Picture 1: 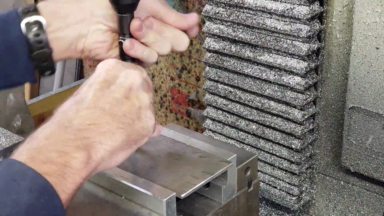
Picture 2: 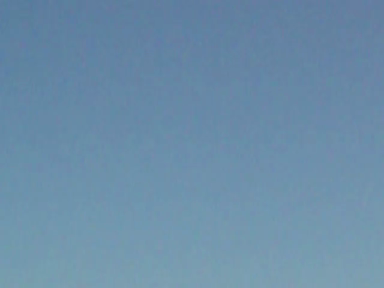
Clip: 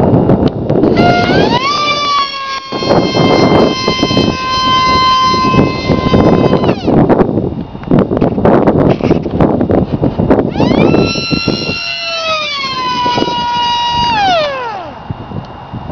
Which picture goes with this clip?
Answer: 2